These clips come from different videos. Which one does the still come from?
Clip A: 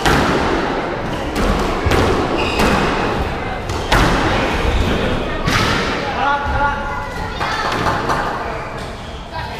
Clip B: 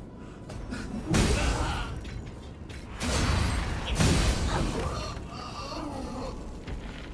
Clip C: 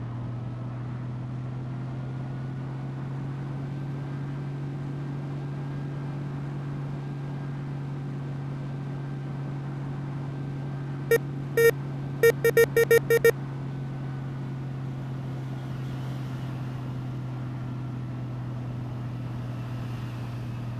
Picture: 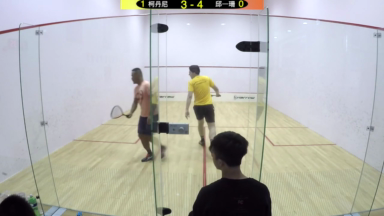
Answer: A